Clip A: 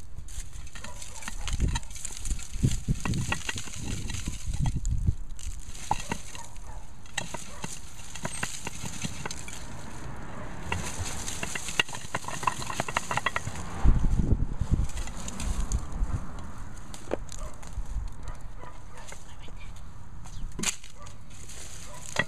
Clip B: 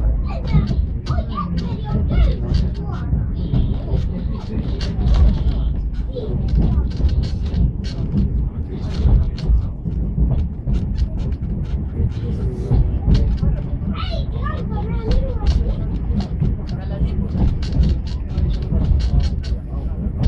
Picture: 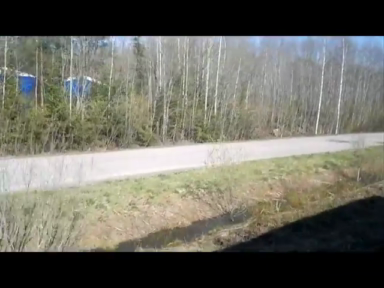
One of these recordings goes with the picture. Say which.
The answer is B